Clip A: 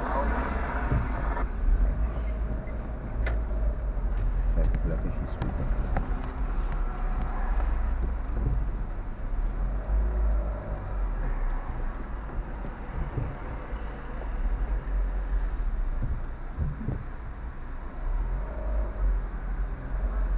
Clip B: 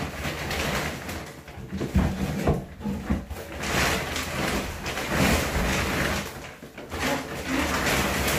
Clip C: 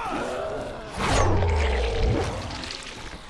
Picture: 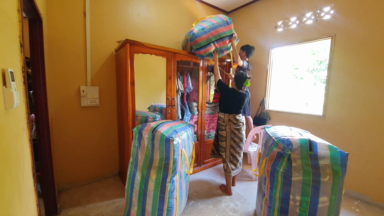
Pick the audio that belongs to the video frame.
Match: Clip B